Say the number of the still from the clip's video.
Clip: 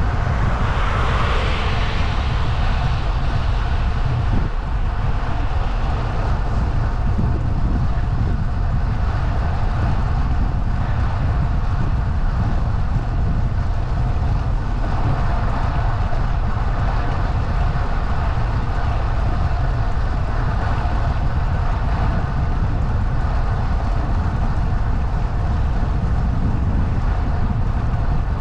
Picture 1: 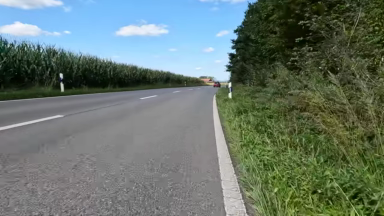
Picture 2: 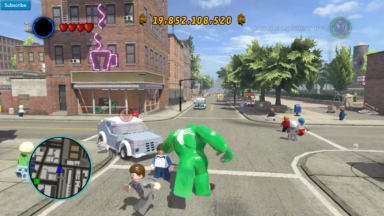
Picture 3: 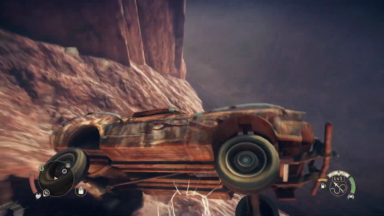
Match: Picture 1